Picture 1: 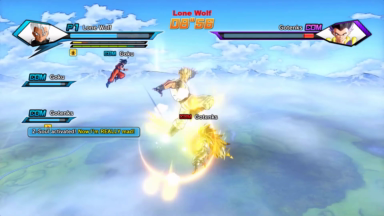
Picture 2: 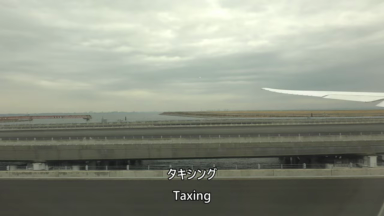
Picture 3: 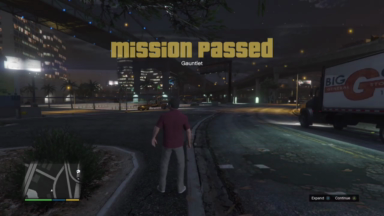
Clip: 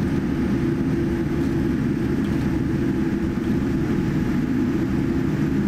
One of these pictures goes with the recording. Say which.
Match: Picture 2